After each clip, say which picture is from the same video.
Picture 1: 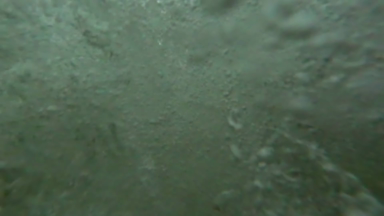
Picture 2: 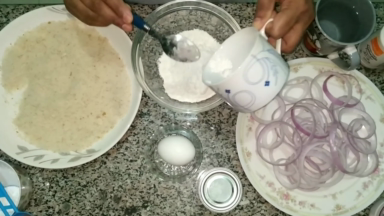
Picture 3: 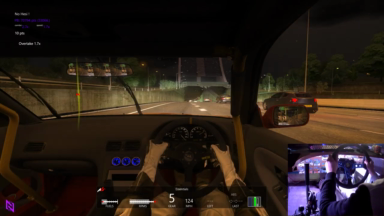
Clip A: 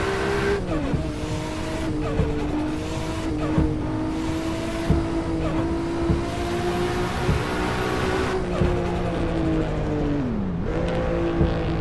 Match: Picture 3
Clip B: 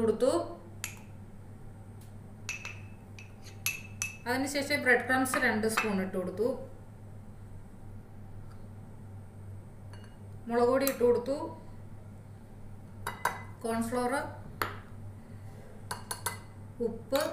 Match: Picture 2